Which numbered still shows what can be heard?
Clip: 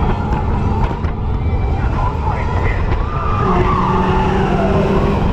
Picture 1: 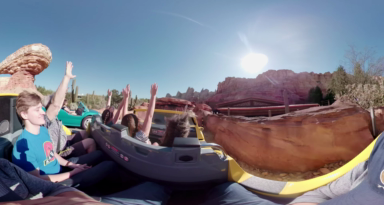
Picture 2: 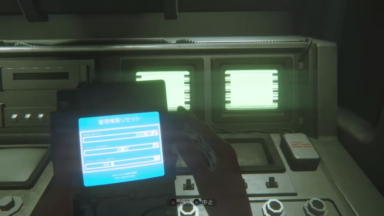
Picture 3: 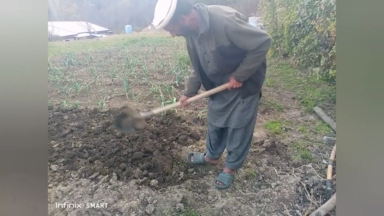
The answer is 1